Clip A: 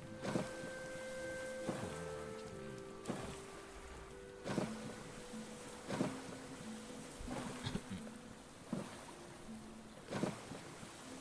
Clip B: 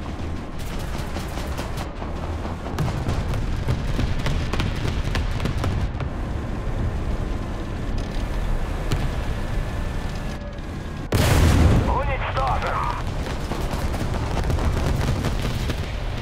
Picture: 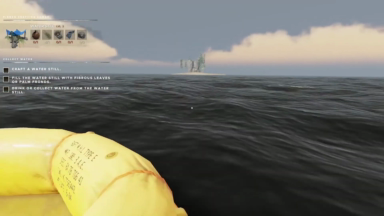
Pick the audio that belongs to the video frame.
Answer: A